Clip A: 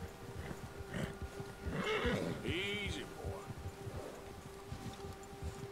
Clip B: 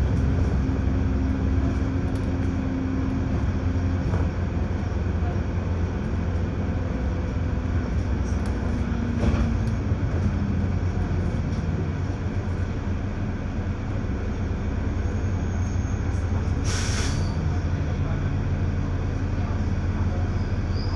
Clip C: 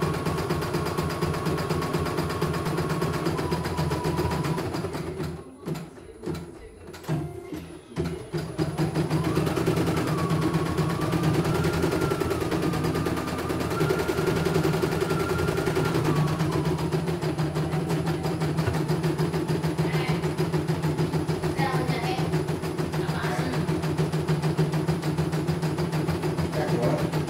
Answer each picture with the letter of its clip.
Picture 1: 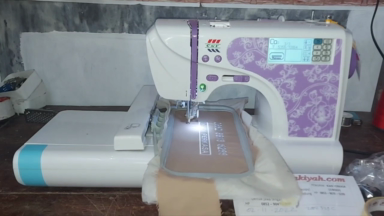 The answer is C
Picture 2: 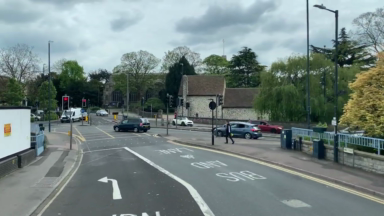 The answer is B